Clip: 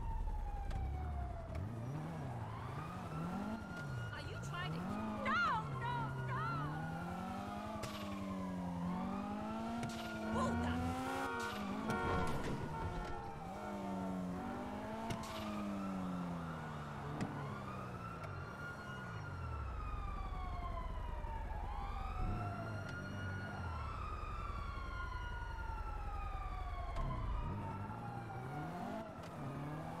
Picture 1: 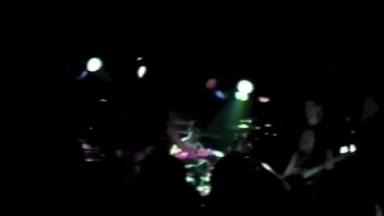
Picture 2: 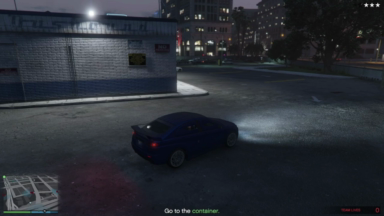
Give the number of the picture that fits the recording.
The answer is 2